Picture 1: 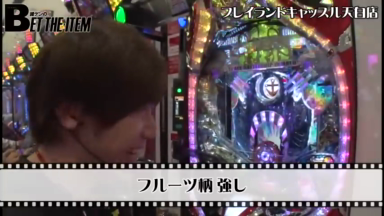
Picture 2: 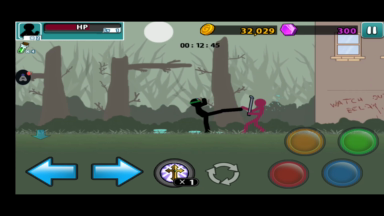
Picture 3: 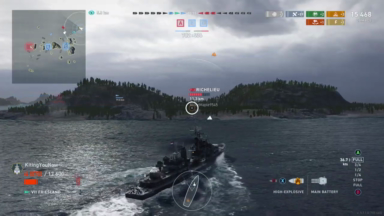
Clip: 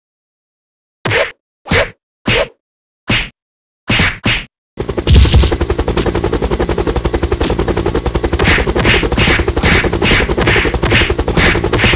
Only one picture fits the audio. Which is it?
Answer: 2